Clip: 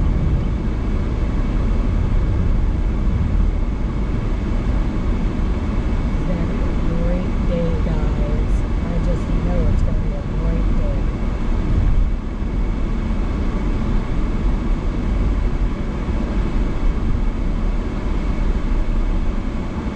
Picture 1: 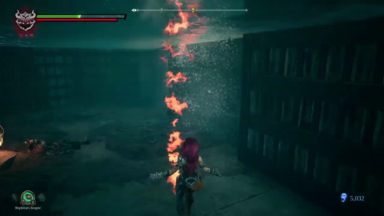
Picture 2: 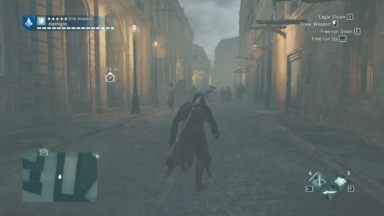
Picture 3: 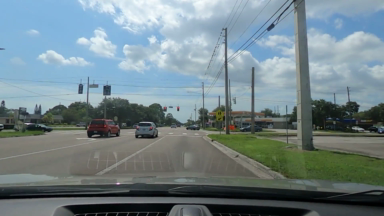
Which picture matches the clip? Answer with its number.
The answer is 3